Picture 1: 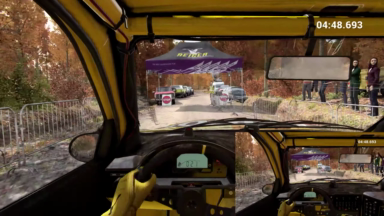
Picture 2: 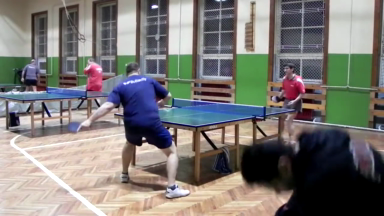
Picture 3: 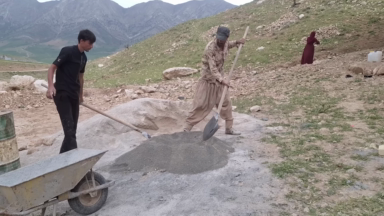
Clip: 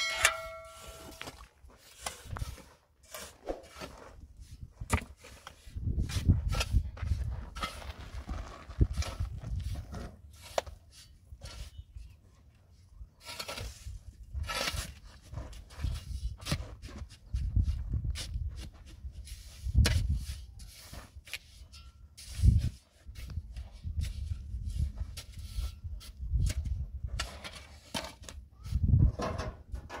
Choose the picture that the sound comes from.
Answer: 3